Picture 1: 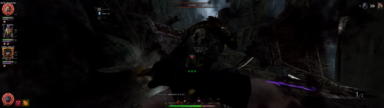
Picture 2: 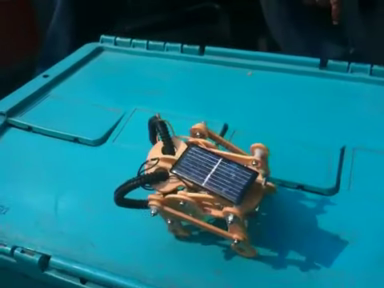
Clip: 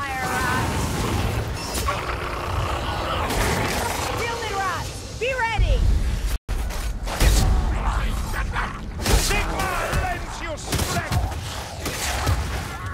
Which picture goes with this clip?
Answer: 1